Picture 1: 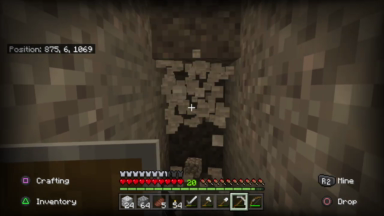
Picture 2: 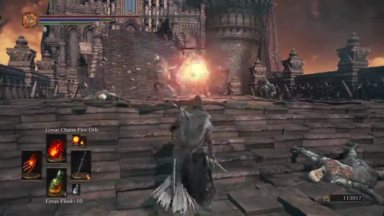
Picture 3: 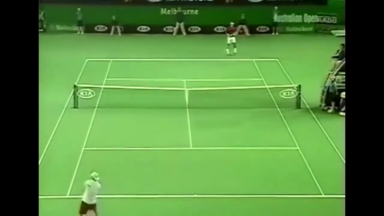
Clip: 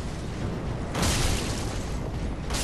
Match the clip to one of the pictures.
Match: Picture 2